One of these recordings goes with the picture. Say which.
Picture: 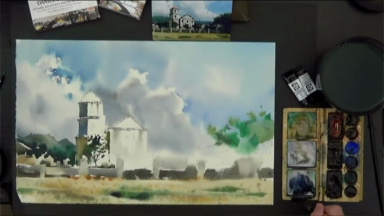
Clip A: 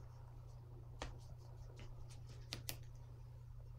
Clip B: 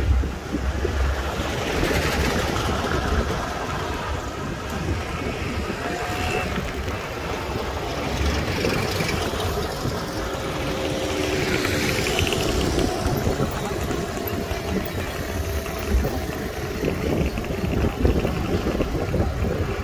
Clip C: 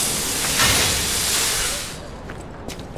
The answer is A